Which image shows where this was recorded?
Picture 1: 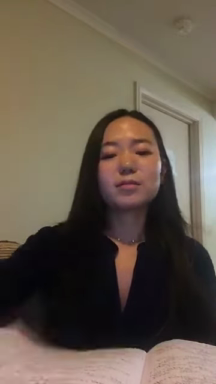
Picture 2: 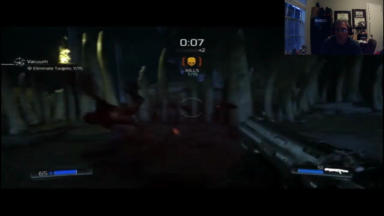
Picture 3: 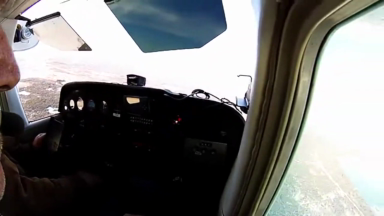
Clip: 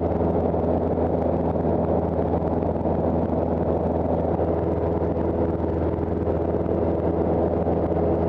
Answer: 3